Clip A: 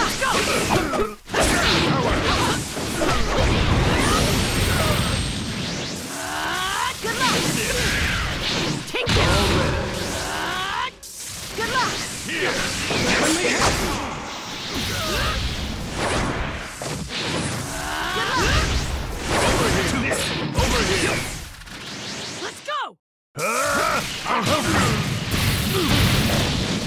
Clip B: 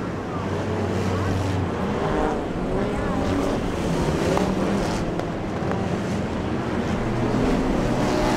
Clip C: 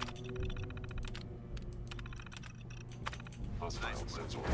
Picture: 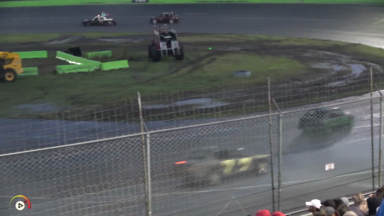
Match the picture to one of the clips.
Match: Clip B